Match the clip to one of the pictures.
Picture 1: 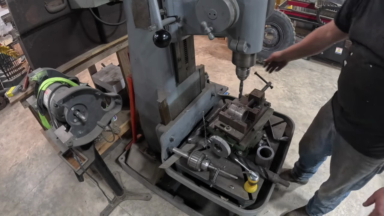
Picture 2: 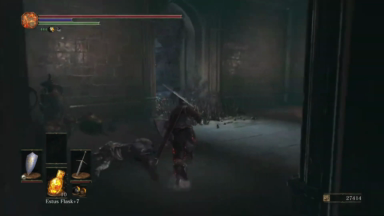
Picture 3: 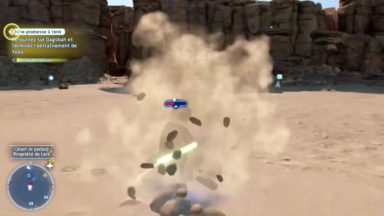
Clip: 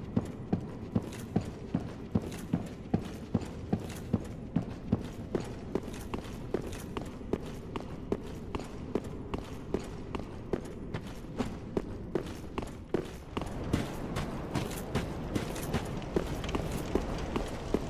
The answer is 2